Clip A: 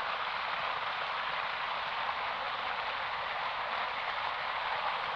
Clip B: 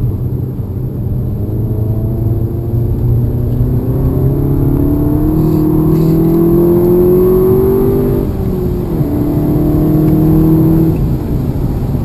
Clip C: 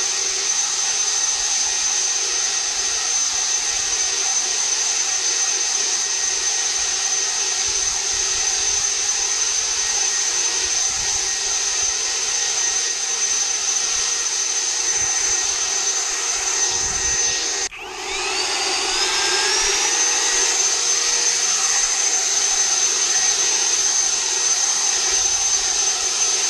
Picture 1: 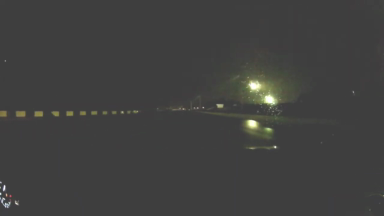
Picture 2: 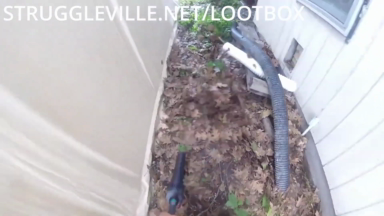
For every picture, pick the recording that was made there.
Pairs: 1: B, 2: C